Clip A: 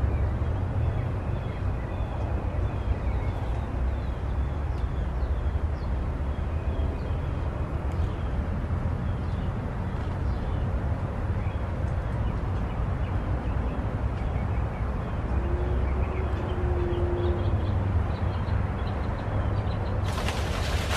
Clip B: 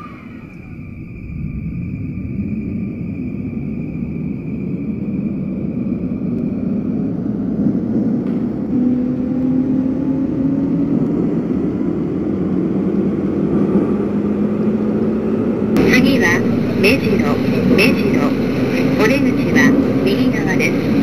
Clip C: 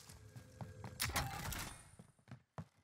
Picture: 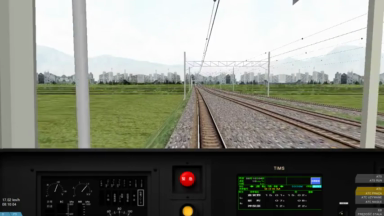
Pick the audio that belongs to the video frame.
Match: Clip B